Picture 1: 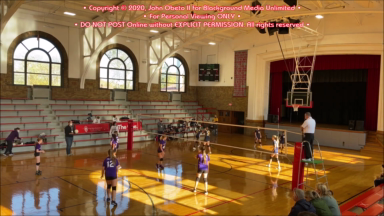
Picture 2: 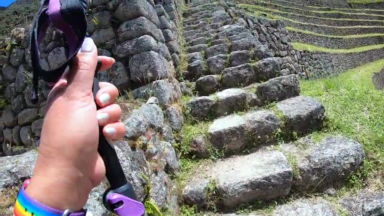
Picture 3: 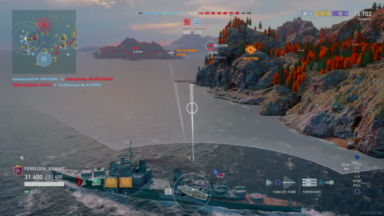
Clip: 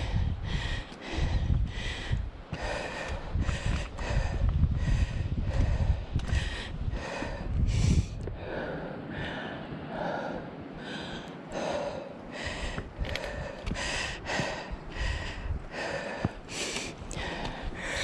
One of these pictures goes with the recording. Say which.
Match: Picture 2